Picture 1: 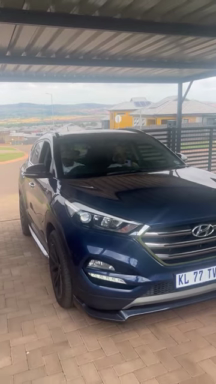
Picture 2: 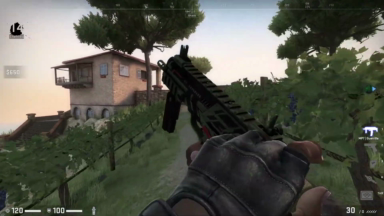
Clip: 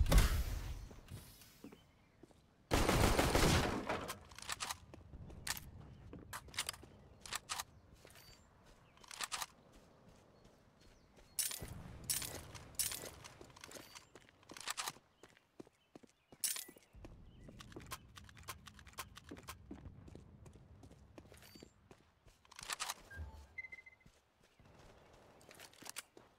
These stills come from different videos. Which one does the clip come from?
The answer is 2